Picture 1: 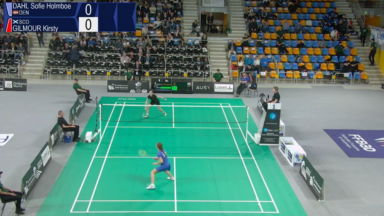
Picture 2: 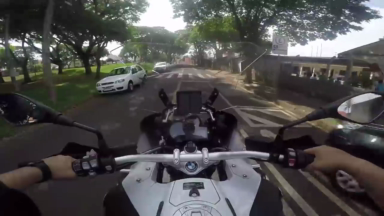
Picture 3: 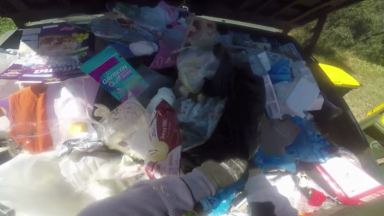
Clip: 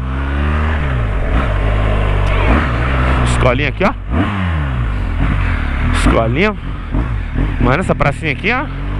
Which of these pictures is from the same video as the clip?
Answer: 2